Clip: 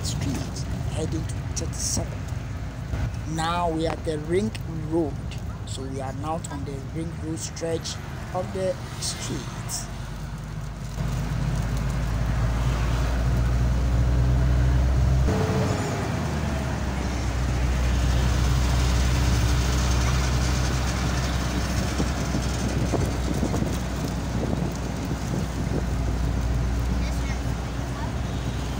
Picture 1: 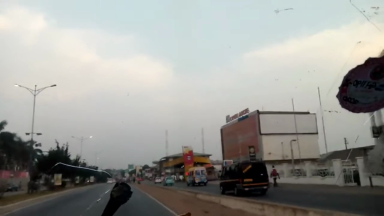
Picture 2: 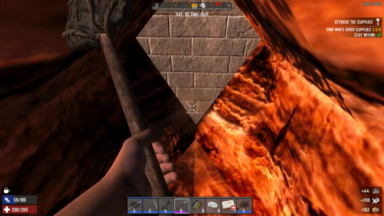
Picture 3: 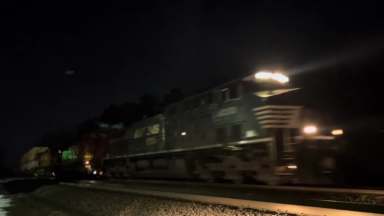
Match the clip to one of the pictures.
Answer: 1